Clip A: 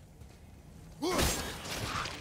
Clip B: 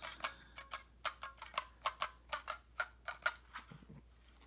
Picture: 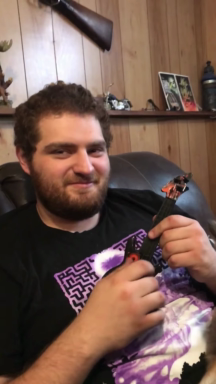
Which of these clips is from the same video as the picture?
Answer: B